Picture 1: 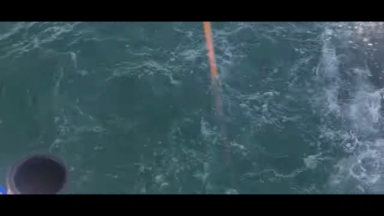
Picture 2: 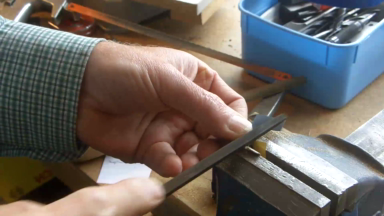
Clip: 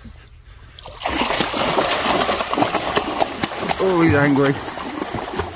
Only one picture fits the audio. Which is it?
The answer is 1